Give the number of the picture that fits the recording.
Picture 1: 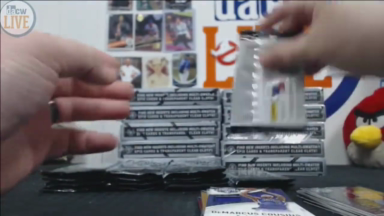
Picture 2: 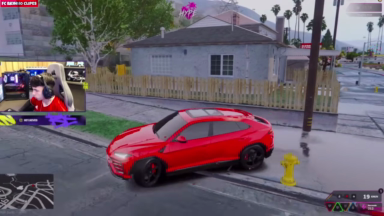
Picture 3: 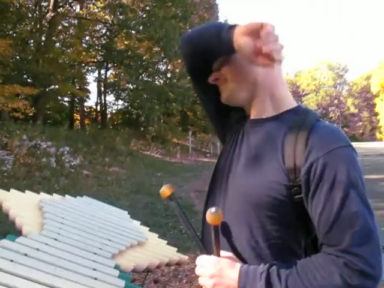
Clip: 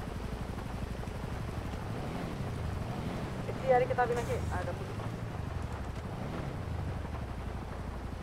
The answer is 2